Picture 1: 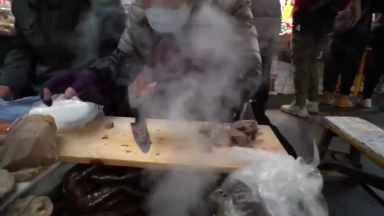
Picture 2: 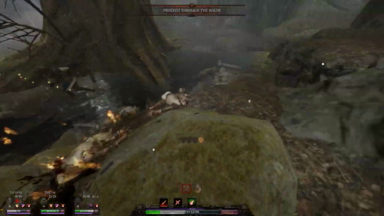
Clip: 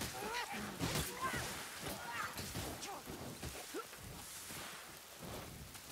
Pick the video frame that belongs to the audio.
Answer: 2